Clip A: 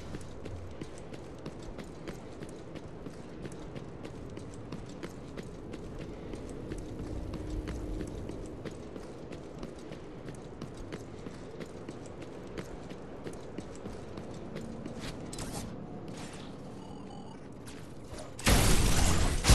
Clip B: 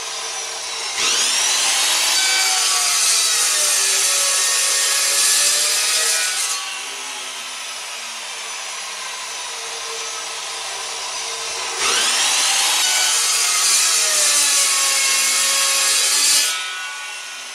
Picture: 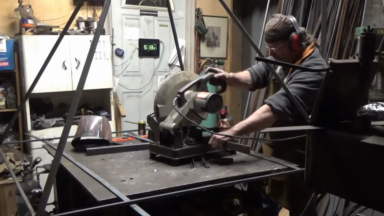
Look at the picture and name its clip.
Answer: B